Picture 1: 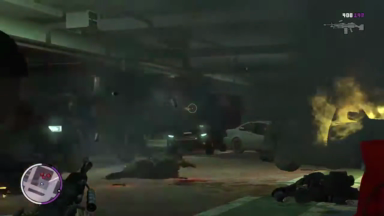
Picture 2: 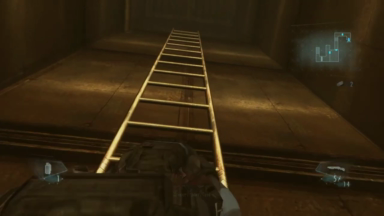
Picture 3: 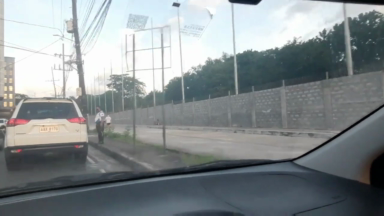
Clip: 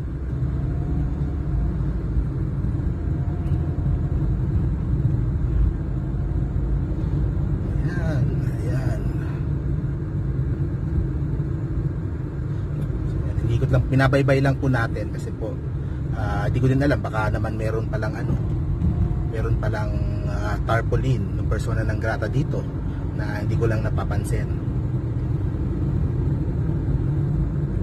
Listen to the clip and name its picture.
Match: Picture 3